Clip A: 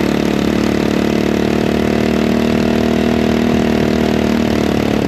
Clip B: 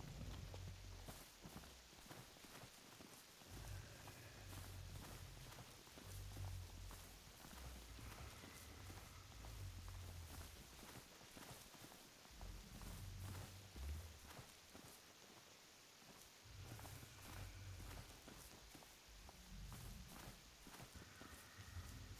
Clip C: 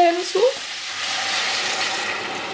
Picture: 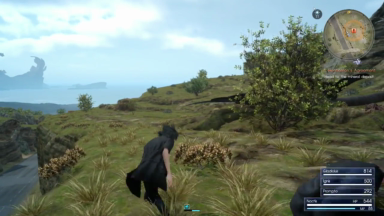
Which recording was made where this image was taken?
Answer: B